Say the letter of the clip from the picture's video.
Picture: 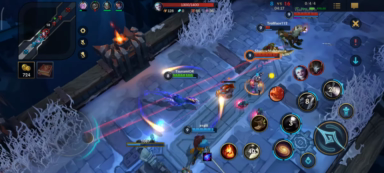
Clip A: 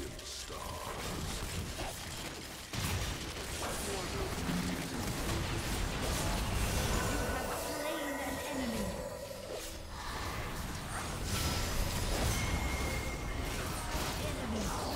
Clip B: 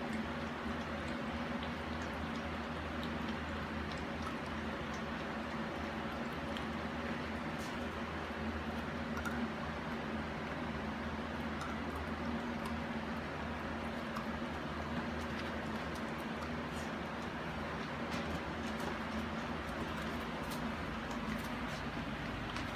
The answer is A